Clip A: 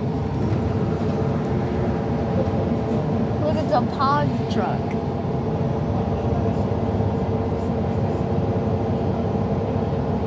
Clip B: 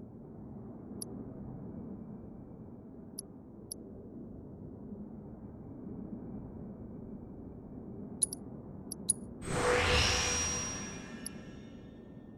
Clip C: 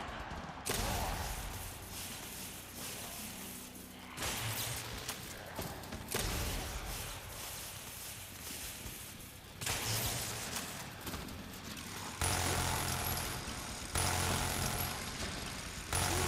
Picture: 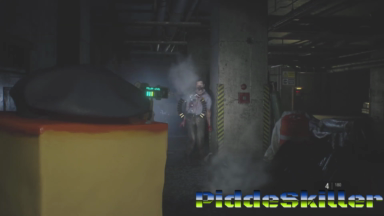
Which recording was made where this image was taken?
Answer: C